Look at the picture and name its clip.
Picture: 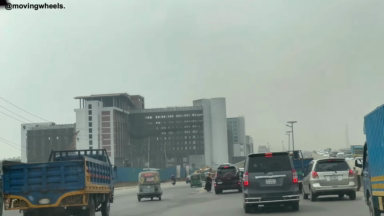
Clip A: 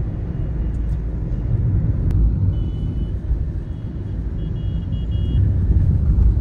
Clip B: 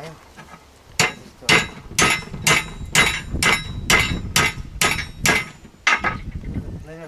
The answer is A